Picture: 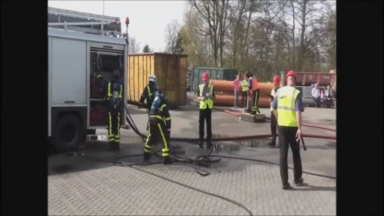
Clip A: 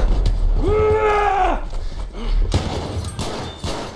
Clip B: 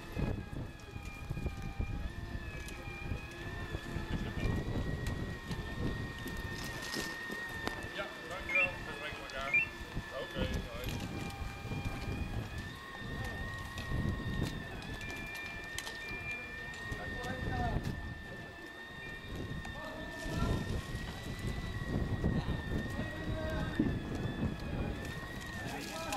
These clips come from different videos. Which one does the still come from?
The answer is B